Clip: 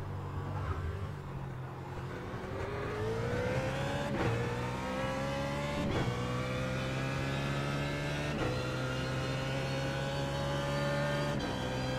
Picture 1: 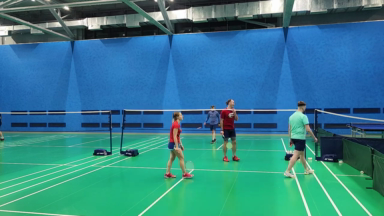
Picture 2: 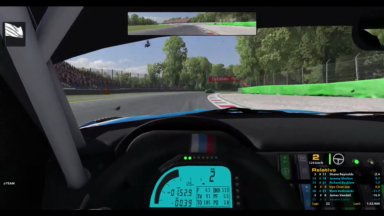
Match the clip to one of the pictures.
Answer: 2